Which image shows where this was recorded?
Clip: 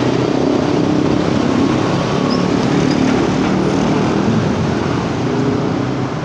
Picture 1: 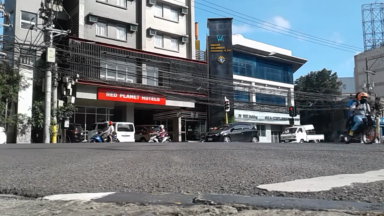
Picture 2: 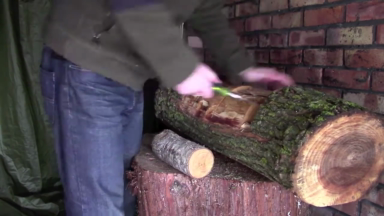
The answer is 1